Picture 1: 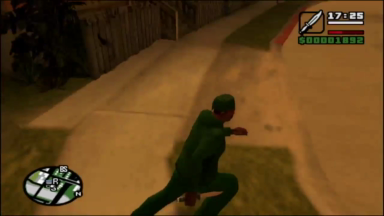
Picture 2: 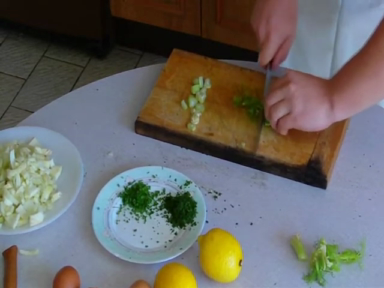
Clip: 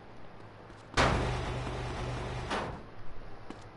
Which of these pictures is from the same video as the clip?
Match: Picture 1